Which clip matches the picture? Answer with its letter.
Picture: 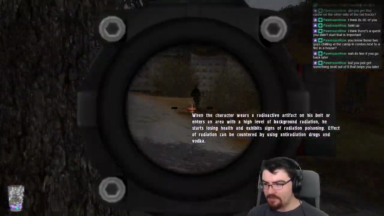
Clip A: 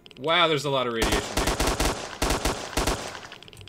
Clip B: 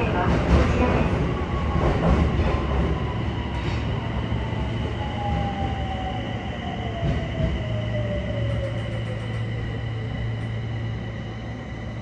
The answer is A